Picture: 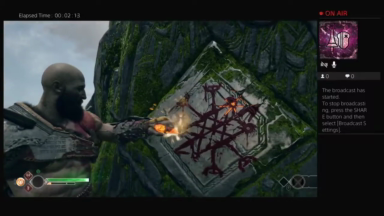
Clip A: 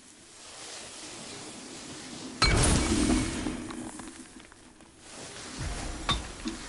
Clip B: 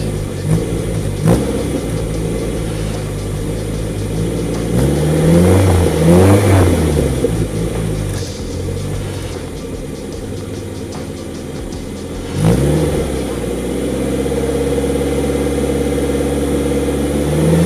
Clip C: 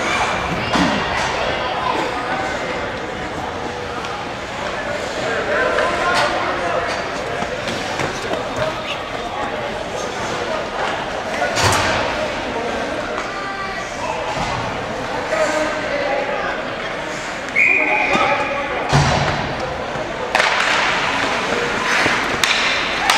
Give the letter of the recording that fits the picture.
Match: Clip A